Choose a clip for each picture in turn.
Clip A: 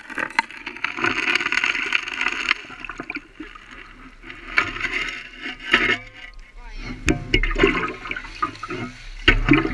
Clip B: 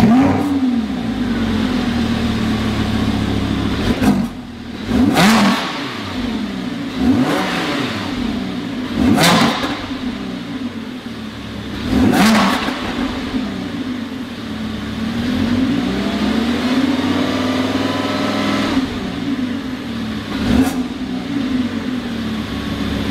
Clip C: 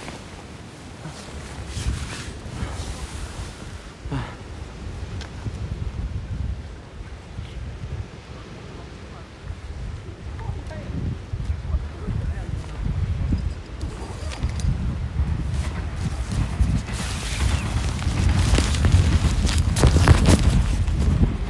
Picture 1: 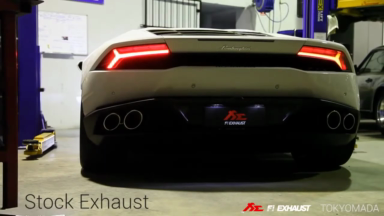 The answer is B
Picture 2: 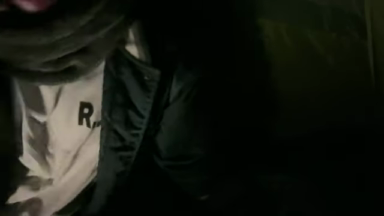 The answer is C